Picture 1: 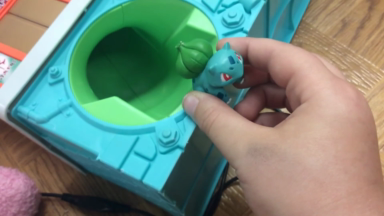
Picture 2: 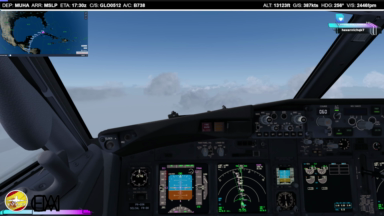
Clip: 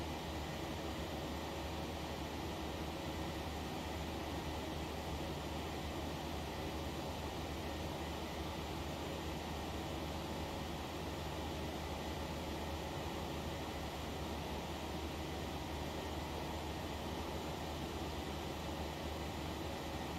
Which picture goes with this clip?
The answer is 2